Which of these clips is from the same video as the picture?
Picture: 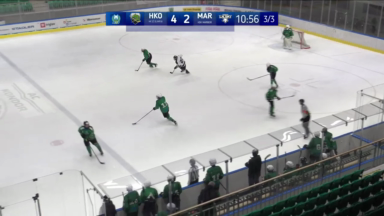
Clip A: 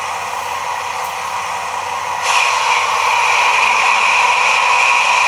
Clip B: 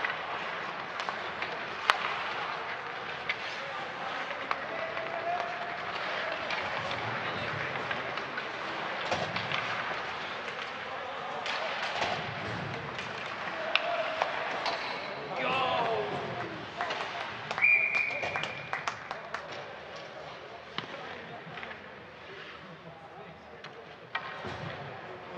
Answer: B